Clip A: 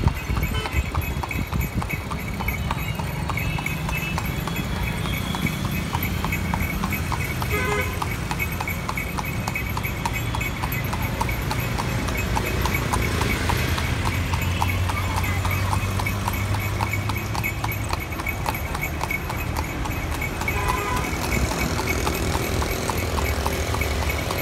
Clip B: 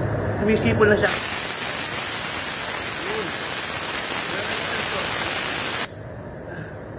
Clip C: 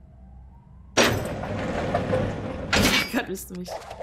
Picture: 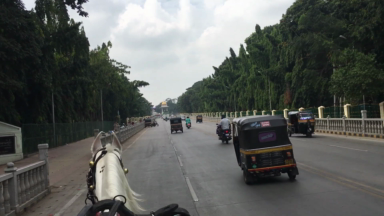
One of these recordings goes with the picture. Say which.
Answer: A